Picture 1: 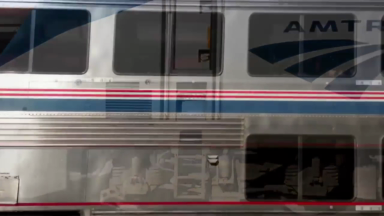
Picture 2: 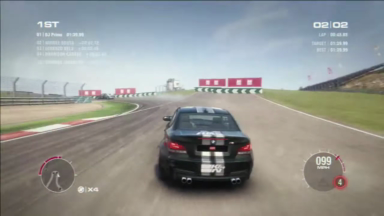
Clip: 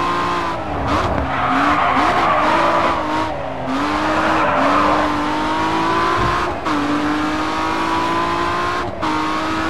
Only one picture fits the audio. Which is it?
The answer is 2